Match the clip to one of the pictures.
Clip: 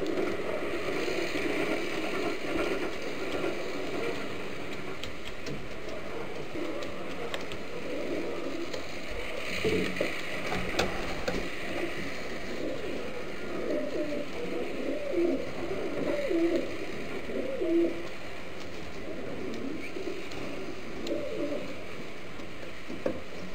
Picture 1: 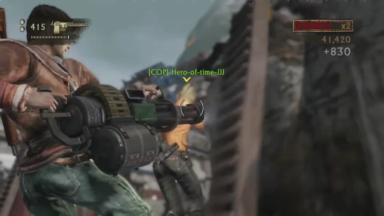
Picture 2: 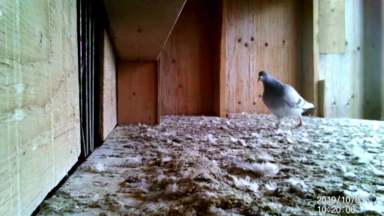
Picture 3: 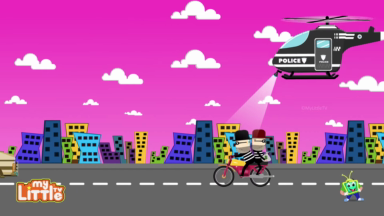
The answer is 2